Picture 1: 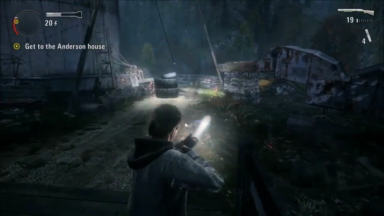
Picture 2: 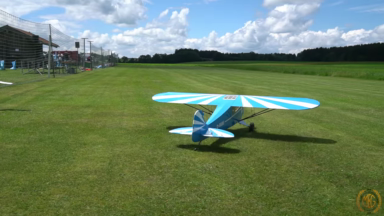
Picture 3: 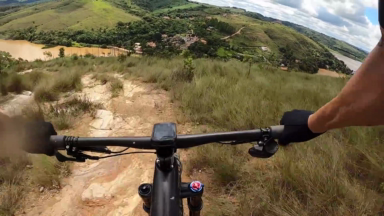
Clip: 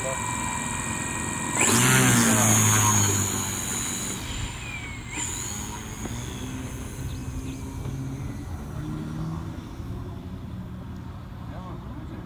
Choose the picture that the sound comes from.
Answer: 2